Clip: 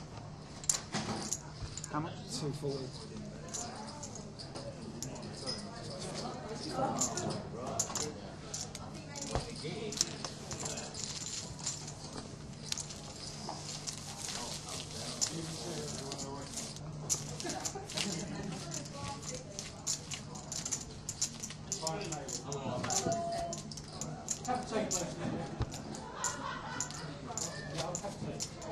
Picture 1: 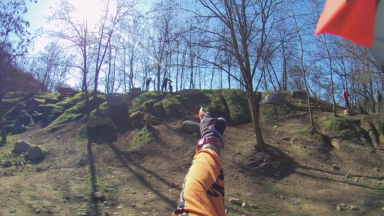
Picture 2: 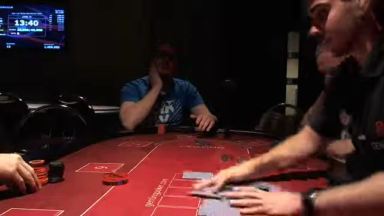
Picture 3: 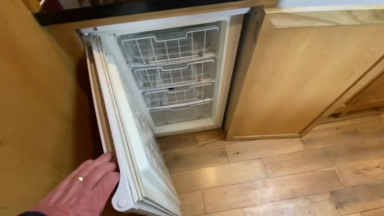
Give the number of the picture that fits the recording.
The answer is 2